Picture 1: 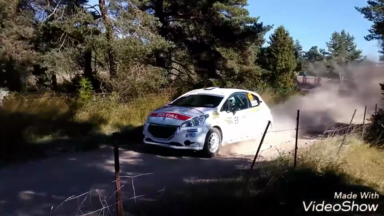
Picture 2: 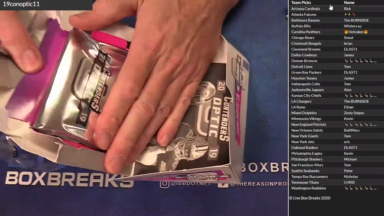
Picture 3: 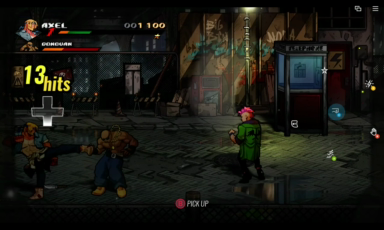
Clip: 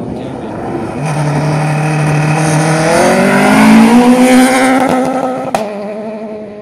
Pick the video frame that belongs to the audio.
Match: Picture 1